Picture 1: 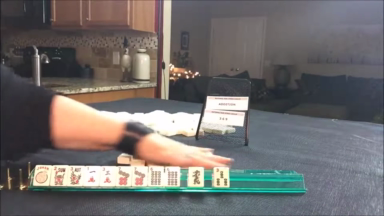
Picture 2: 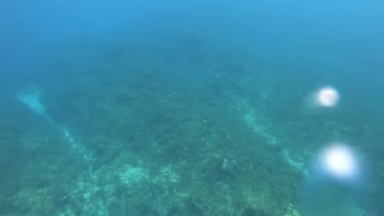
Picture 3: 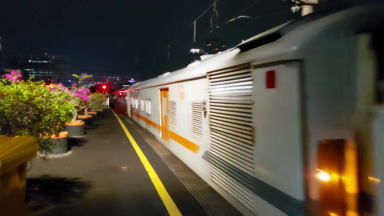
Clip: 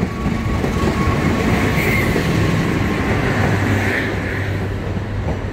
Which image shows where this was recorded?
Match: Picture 3